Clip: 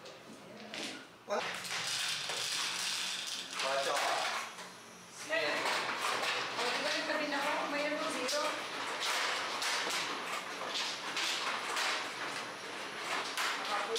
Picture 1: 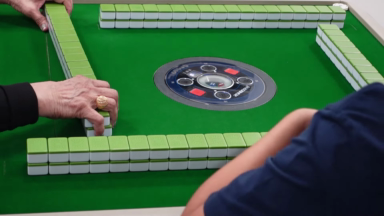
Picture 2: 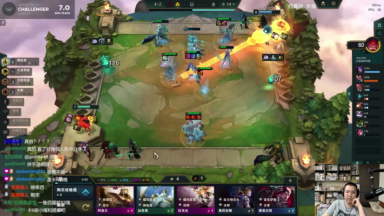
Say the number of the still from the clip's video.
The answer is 1